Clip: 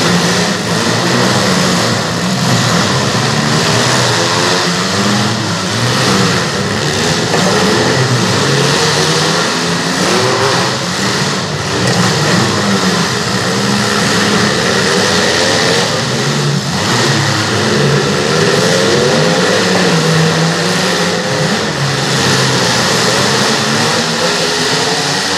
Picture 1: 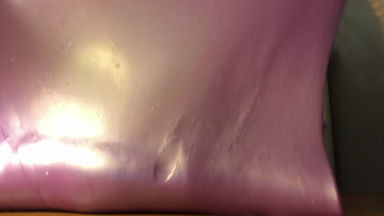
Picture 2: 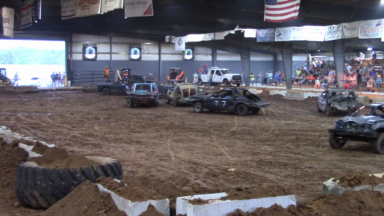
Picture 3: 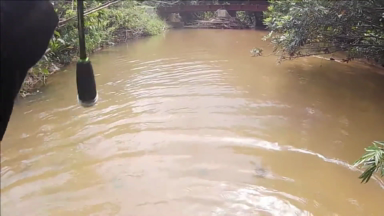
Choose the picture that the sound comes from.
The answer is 2